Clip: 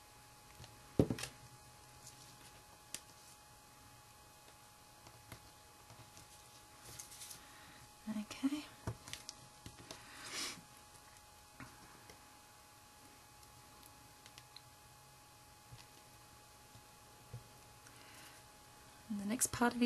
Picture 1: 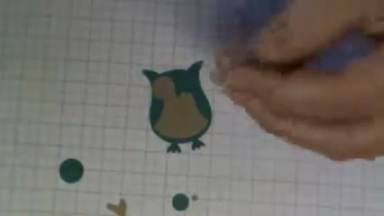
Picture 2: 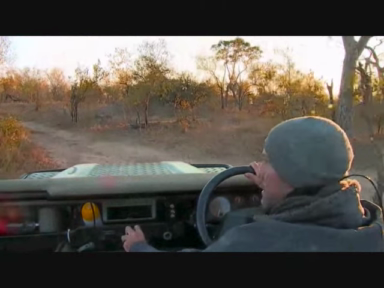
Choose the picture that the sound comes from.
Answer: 1